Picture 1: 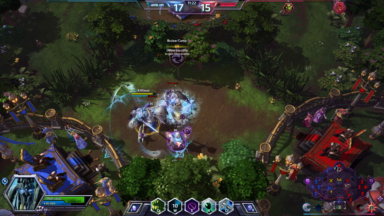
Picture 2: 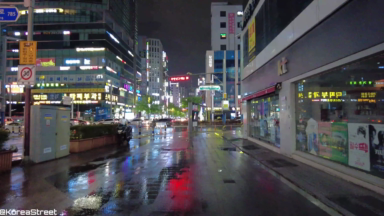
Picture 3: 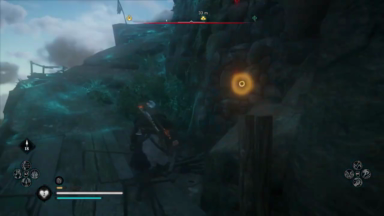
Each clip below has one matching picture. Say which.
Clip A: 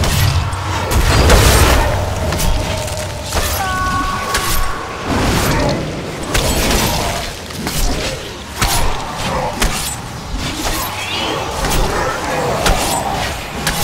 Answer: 1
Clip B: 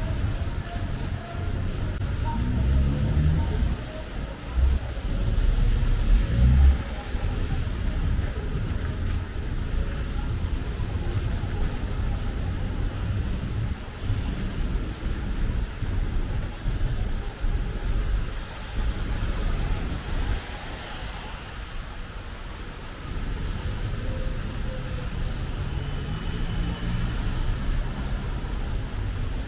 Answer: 2